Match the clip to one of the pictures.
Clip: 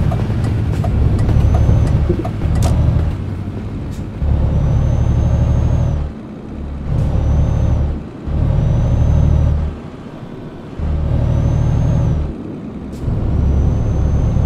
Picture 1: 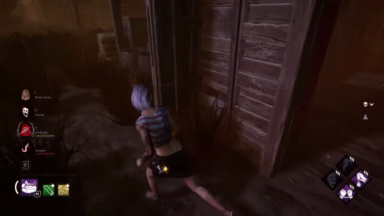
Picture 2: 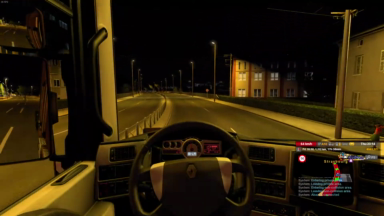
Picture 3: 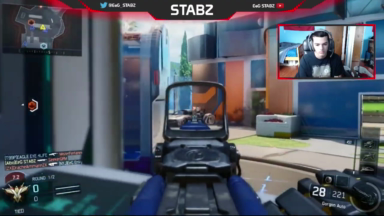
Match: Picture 2